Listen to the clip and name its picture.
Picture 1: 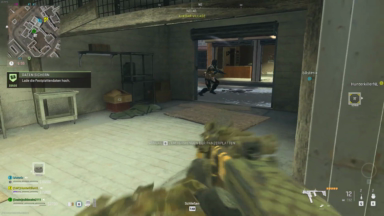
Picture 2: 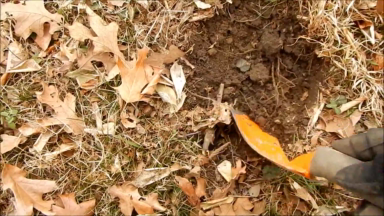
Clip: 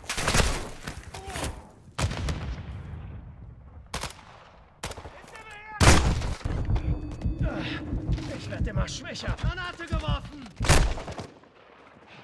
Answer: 1